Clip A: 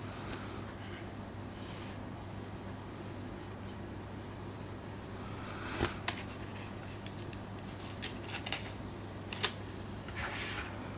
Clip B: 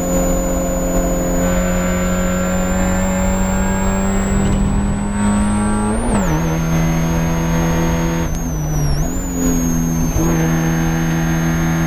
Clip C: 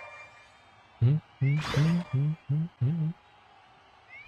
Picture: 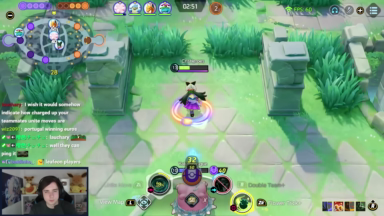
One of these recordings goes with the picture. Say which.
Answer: C